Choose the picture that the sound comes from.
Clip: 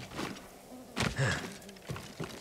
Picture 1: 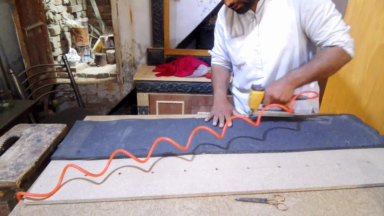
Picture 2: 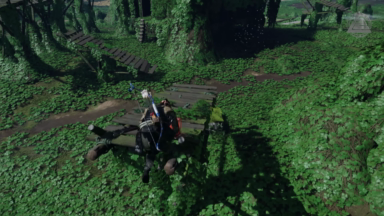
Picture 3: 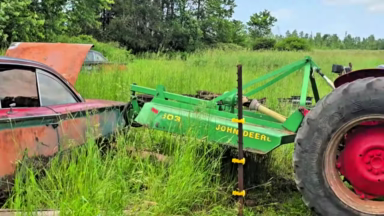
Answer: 2